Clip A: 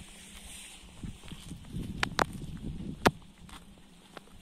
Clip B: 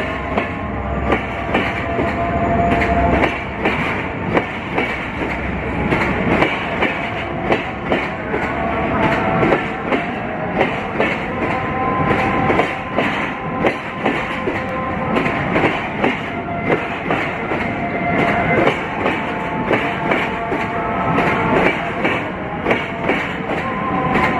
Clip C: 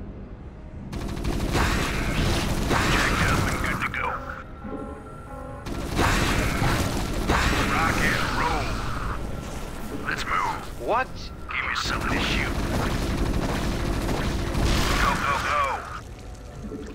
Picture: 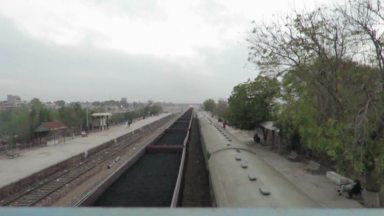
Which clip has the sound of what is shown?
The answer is B